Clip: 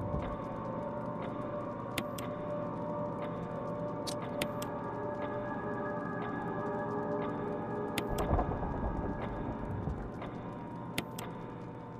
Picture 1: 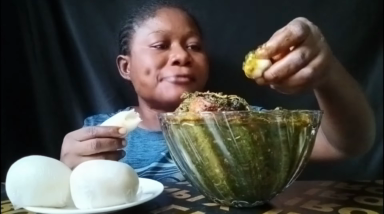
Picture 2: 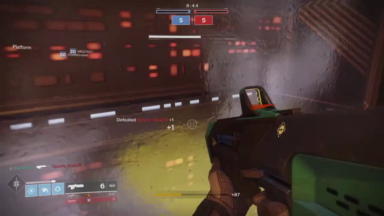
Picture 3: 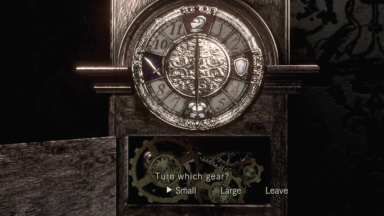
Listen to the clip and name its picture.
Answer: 3